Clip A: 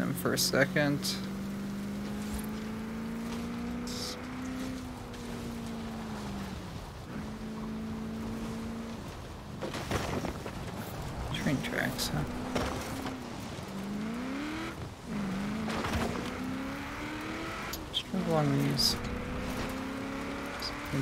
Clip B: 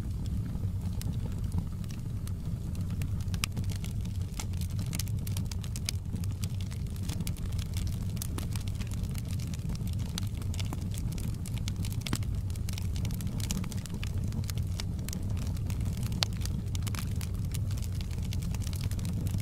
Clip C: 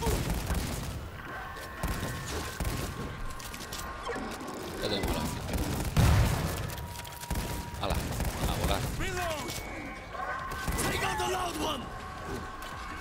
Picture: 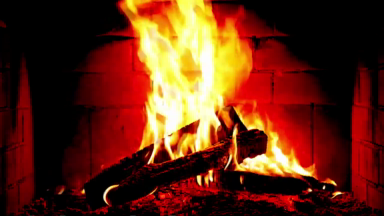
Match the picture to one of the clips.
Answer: B